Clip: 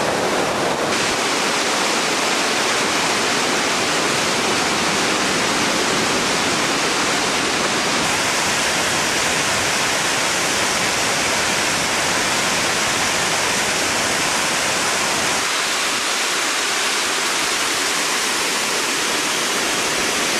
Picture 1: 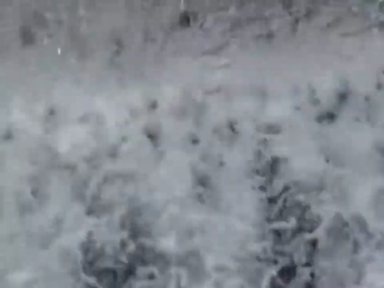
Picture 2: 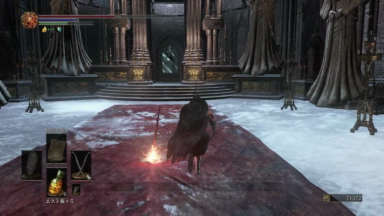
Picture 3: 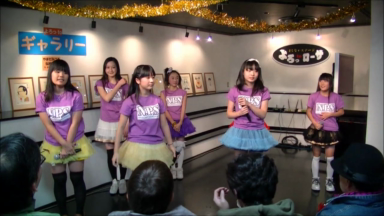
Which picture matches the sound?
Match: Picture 1